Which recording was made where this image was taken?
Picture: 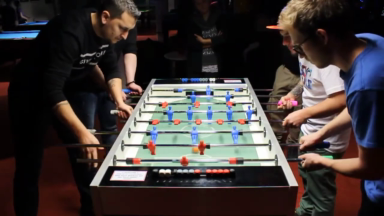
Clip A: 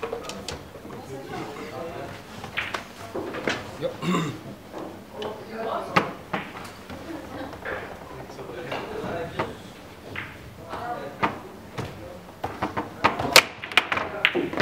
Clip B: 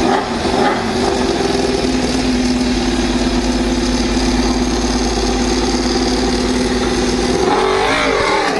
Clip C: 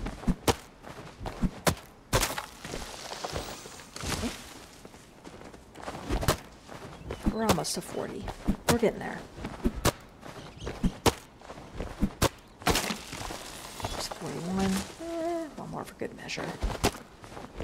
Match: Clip A